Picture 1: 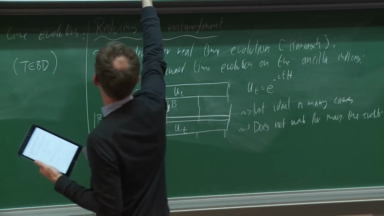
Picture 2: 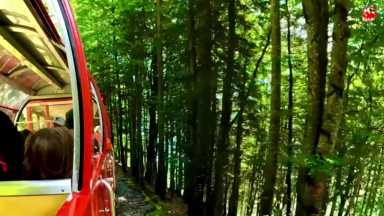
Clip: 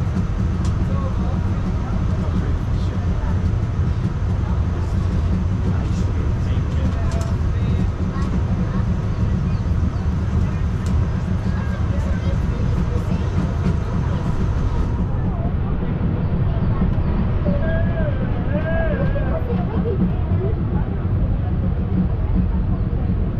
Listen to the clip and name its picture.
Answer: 2